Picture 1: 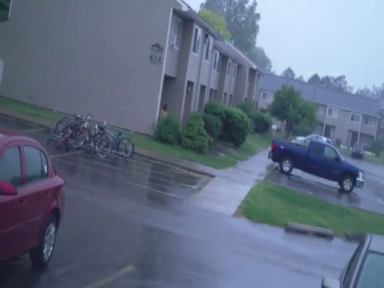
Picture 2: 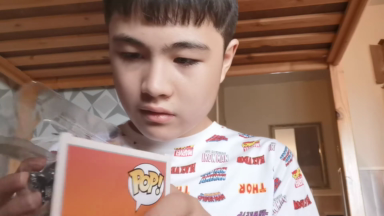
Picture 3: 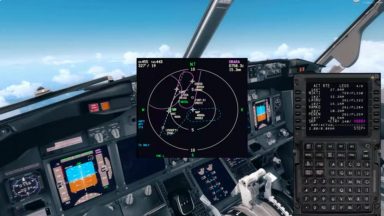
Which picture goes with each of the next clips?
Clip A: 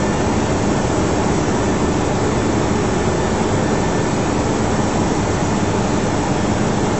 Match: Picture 3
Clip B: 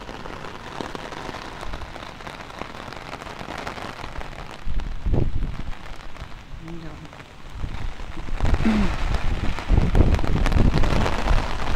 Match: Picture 1